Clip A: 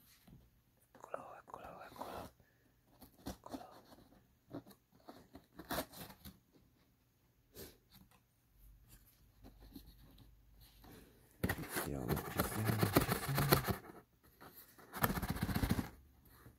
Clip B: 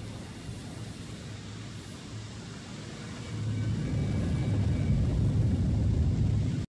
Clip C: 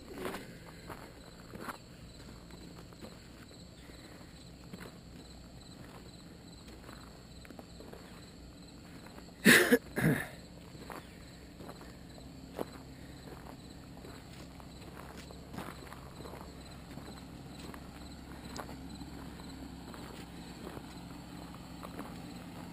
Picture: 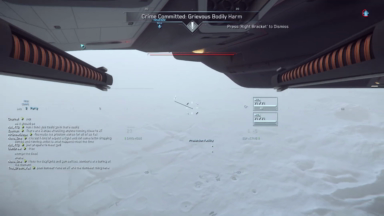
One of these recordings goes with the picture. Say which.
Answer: B